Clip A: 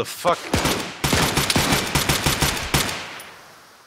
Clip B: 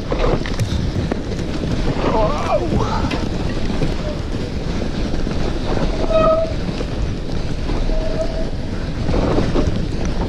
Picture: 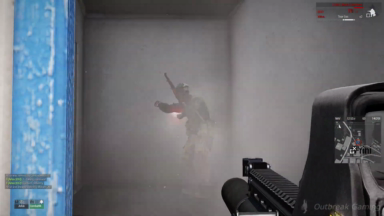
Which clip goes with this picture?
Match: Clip A